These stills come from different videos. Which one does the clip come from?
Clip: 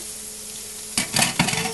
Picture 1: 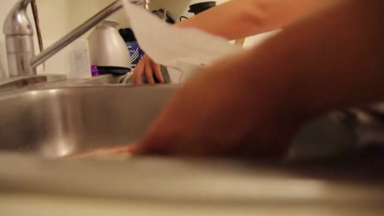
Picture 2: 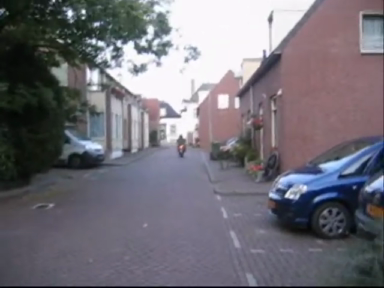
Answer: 1